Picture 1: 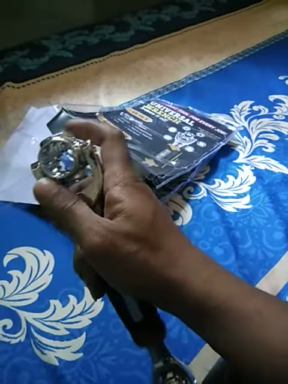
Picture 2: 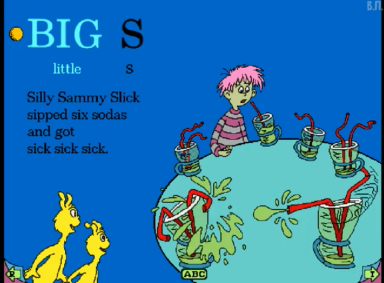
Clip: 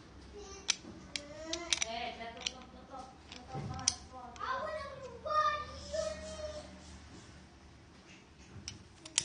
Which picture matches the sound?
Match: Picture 1